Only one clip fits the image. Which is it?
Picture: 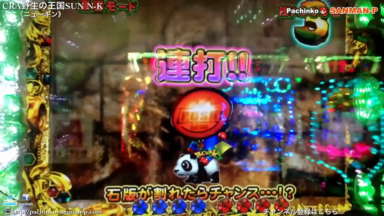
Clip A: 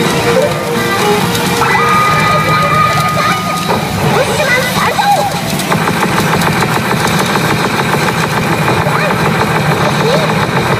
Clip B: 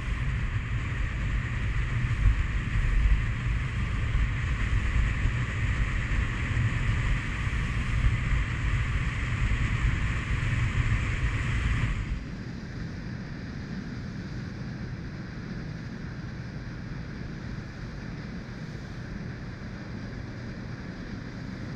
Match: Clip A